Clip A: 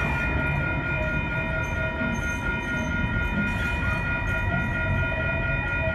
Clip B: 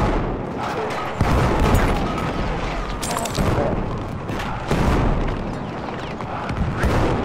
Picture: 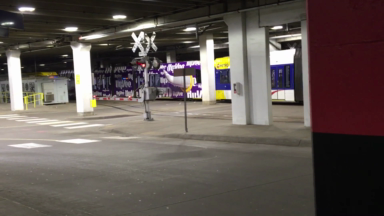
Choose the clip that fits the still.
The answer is A